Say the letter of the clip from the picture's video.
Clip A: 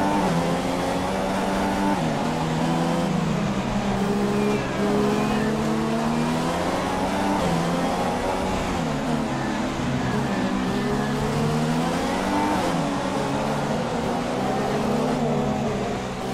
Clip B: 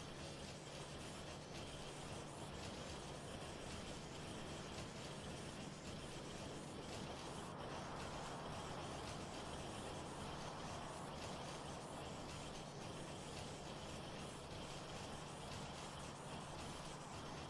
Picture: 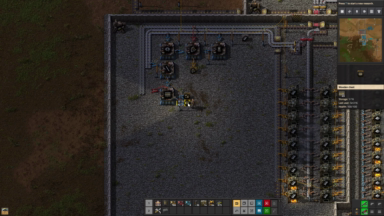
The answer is B